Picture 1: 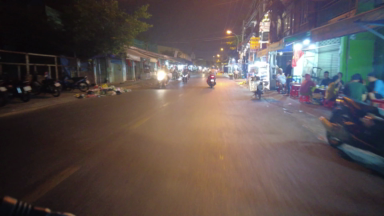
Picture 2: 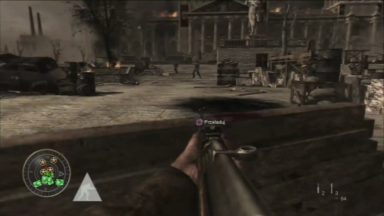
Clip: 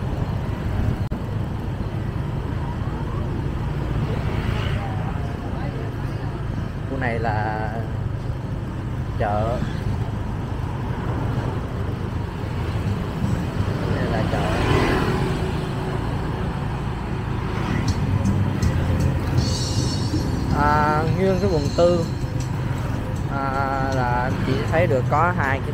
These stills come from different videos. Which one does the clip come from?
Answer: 1